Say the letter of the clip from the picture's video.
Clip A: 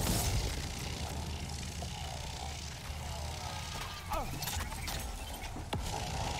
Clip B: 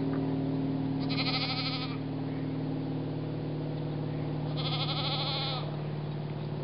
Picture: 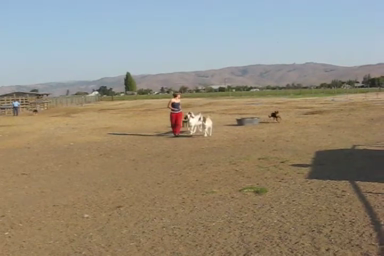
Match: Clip B